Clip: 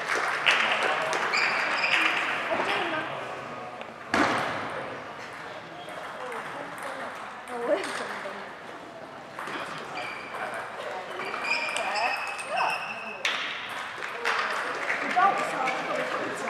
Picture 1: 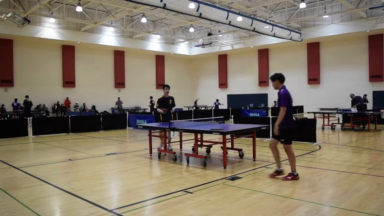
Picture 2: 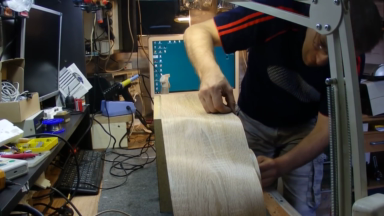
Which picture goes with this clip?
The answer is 1